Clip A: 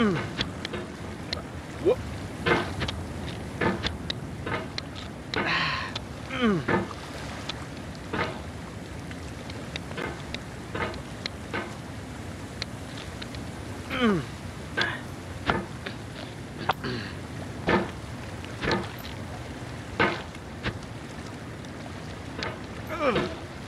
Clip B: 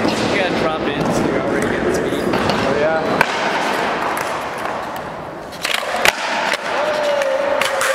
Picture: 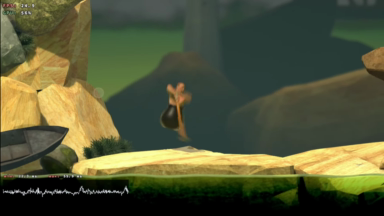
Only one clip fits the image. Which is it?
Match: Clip A